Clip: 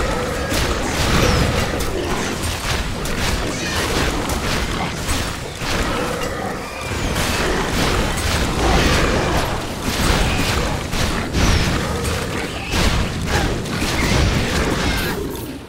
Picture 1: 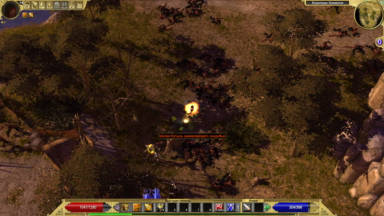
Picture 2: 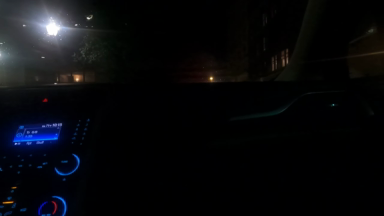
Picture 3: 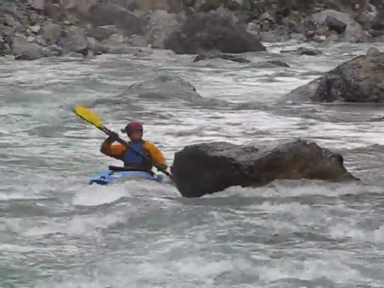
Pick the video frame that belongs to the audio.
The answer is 1